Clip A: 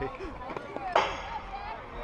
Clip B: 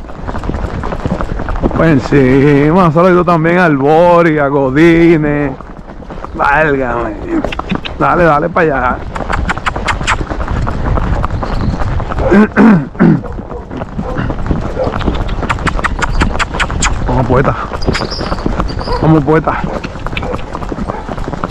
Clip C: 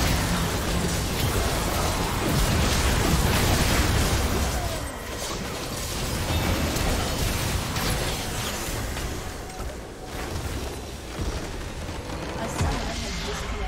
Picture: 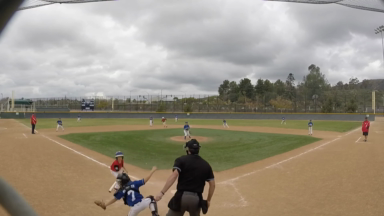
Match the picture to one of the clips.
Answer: A